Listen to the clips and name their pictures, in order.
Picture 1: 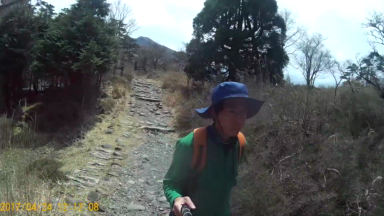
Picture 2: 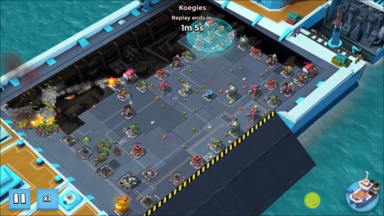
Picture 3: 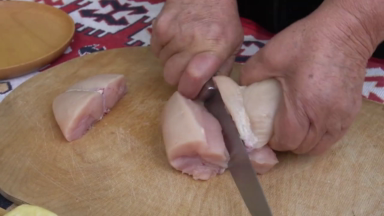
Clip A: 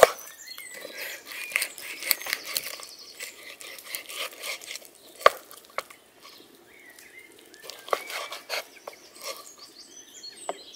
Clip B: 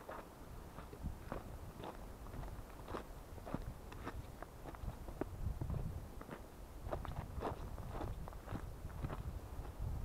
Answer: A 3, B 1